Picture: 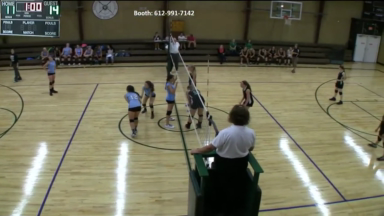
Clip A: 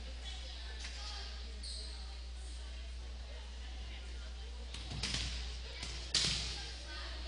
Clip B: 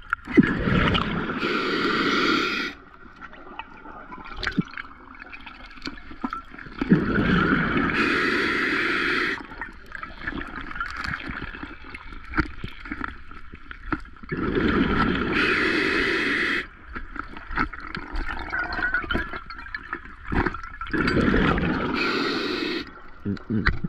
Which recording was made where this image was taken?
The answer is A